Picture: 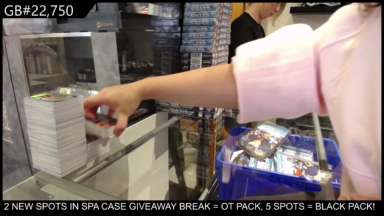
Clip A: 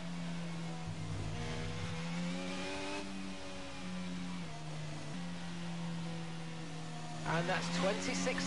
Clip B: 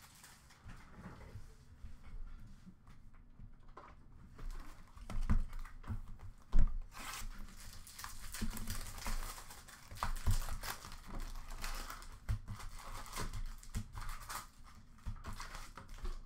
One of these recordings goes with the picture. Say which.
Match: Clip B